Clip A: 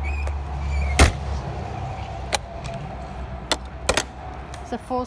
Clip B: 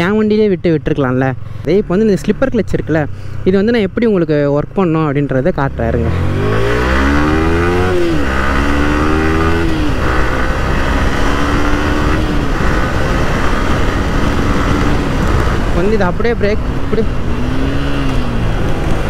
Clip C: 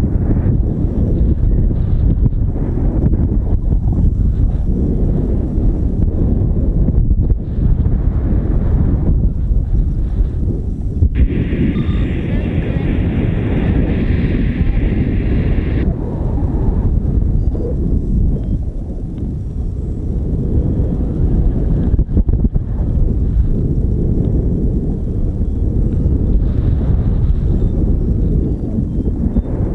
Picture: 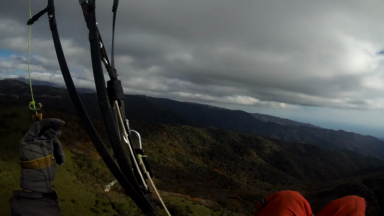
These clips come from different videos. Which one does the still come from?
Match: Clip C